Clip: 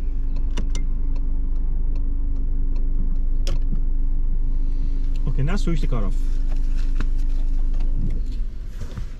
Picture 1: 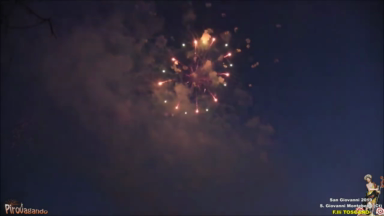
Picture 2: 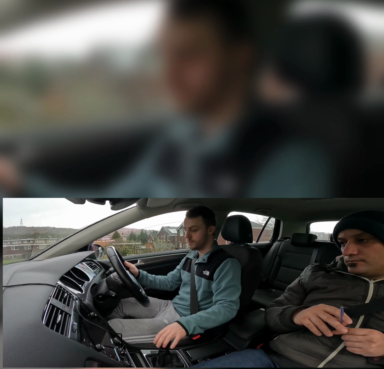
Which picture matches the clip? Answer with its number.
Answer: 2